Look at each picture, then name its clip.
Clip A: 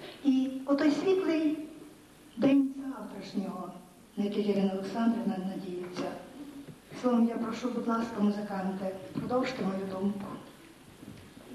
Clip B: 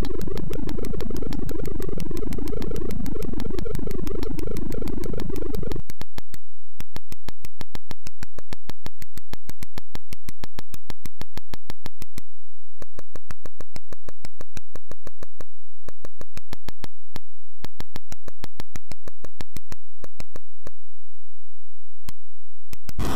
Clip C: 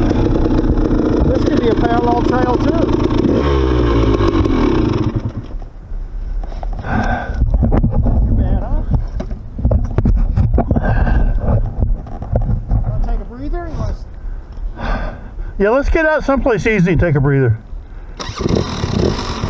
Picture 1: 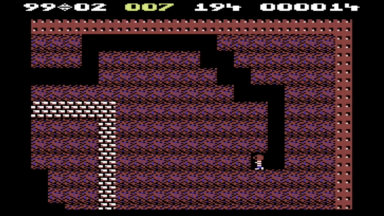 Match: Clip B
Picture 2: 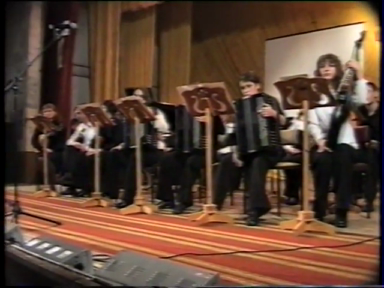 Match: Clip A